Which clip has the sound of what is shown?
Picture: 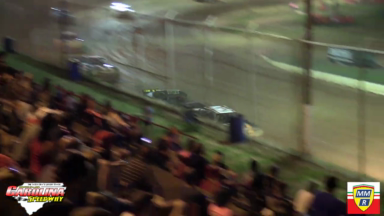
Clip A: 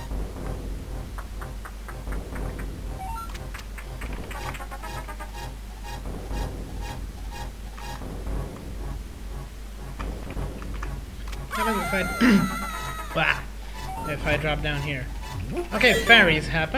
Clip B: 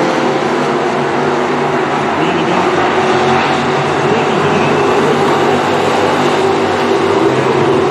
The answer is B